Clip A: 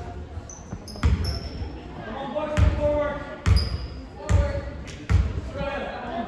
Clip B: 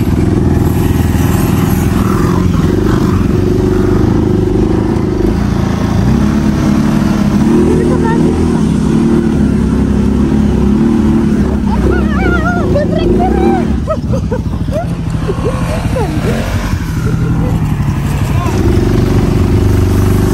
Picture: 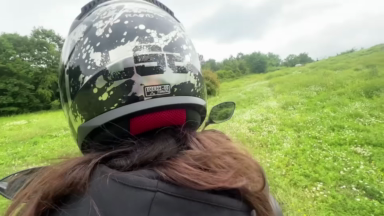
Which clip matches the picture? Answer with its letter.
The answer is B